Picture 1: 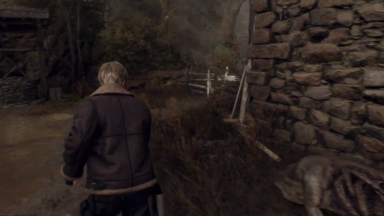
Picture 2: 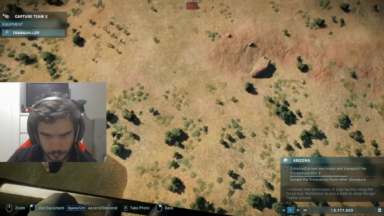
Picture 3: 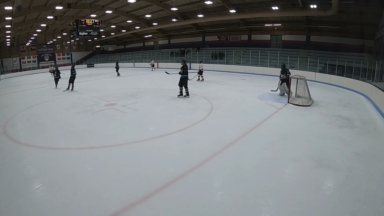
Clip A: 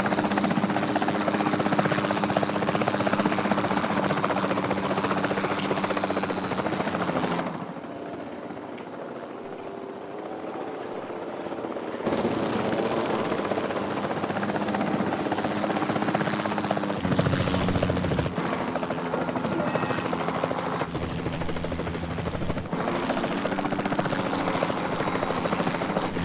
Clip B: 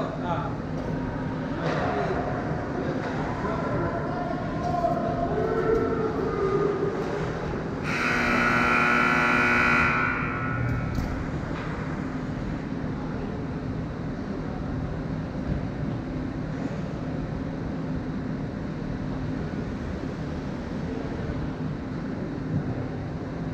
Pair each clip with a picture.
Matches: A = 2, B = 3